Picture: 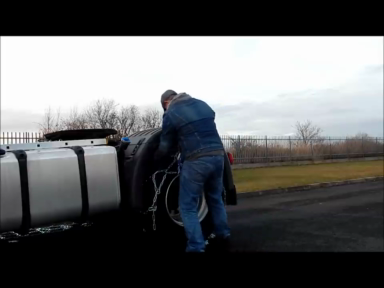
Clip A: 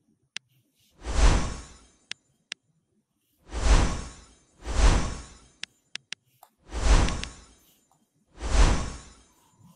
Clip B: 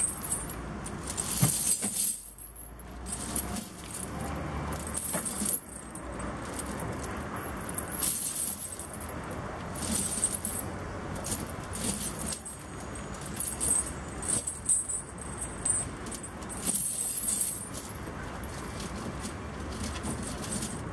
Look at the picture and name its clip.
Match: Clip B